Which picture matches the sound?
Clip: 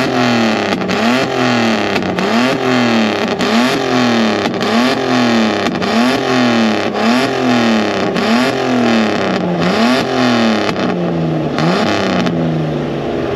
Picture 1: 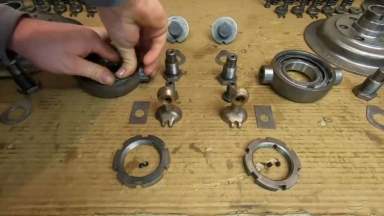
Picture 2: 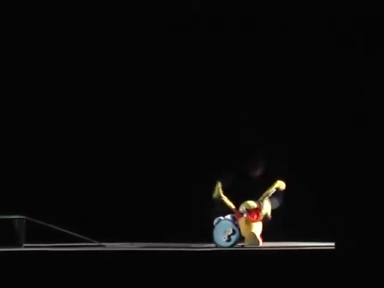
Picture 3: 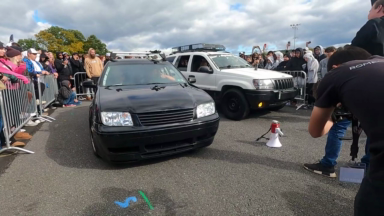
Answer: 3